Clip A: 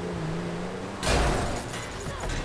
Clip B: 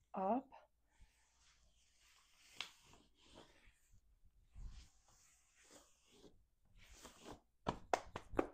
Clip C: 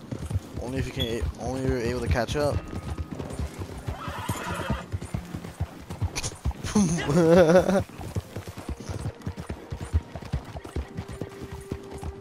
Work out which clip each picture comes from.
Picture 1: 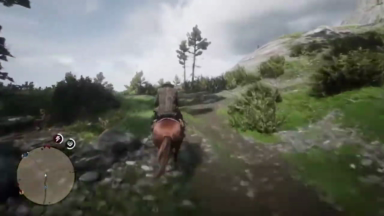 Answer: C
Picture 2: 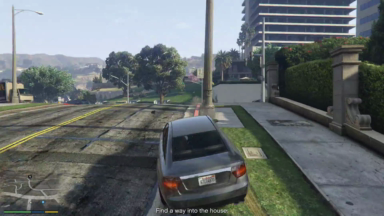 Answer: A